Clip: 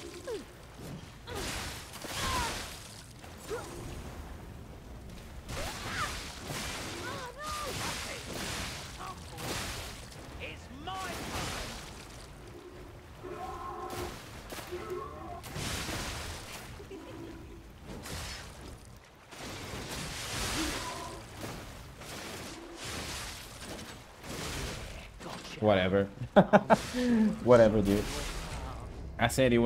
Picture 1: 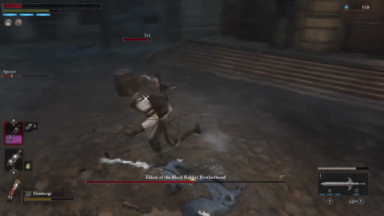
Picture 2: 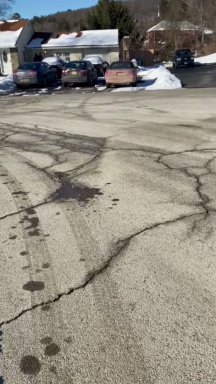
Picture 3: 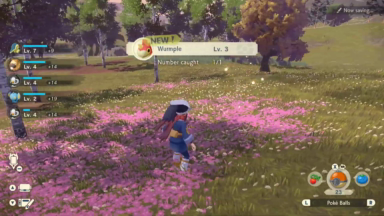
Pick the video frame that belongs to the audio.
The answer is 1